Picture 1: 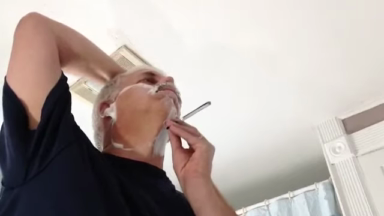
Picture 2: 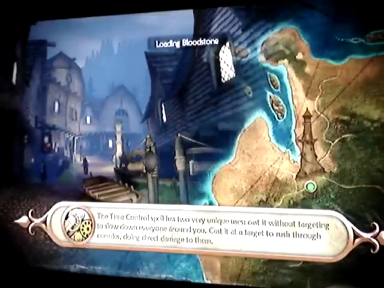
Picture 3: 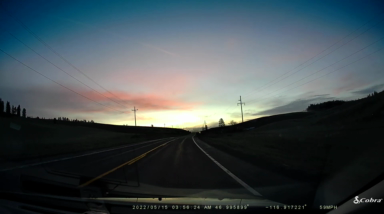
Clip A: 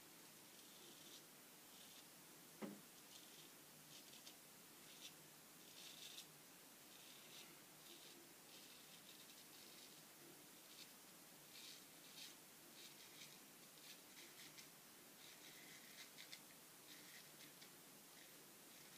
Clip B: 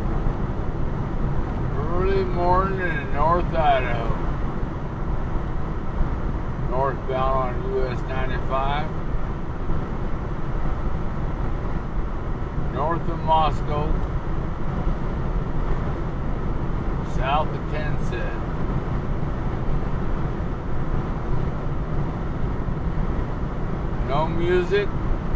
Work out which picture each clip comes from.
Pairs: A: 1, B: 3